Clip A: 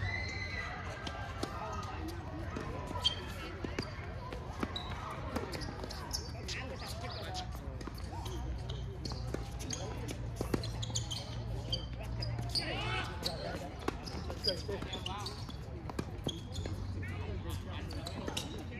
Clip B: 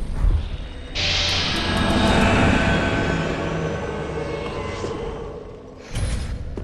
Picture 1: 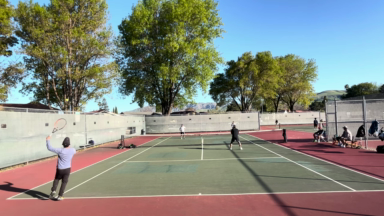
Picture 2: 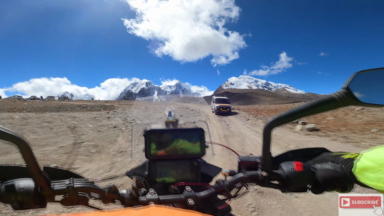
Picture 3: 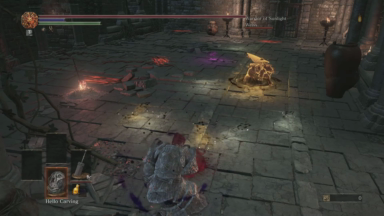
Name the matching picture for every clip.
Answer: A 1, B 3